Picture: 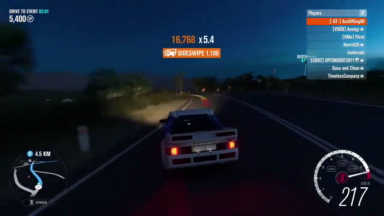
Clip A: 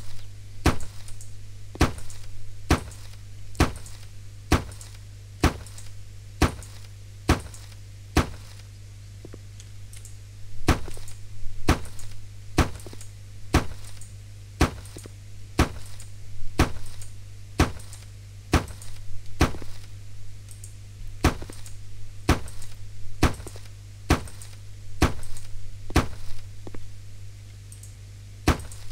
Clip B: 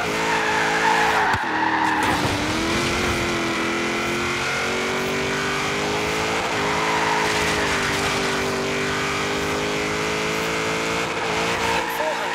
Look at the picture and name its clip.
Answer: B